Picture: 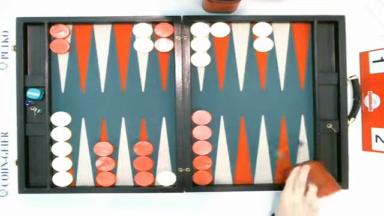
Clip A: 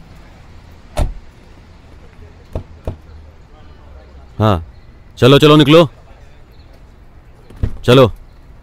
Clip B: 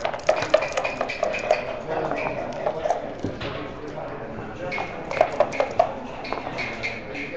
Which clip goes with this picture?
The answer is B